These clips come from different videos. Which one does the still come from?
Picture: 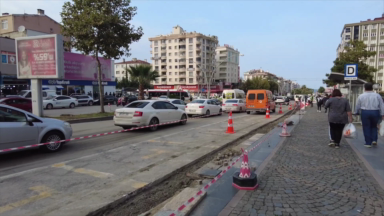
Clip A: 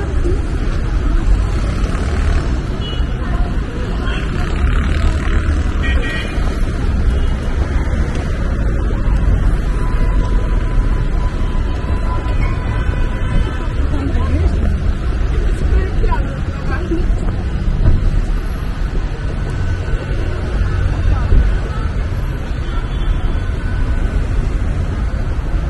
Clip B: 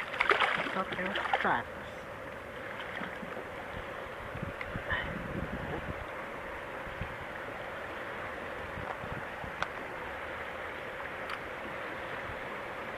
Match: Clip A